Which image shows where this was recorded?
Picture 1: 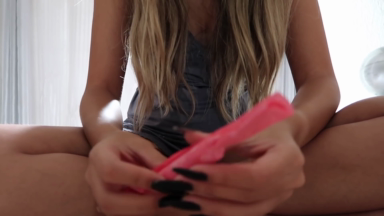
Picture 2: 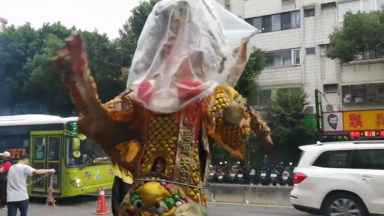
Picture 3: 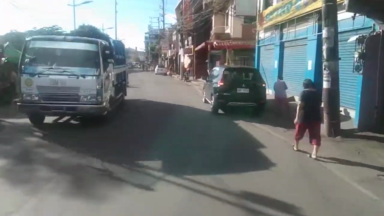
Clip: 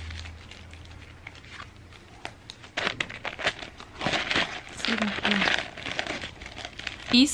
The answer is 1